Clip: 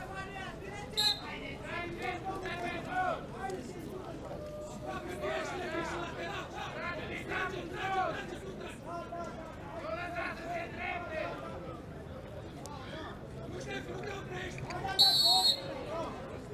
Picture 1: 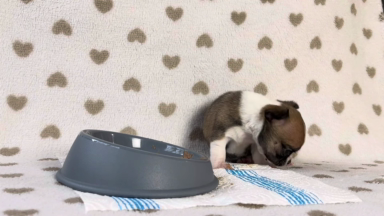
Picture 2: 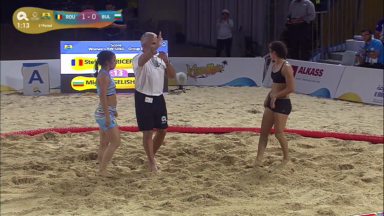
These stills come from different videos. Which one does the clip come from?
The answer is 2